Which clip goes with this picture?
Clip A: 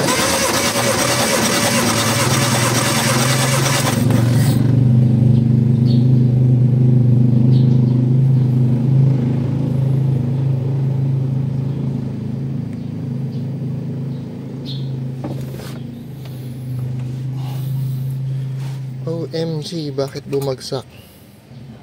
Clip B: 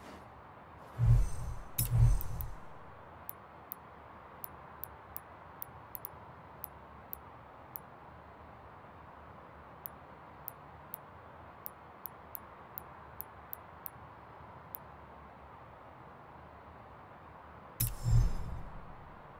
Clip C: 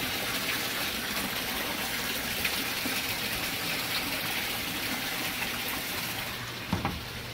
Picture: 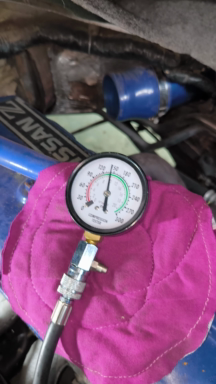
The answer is A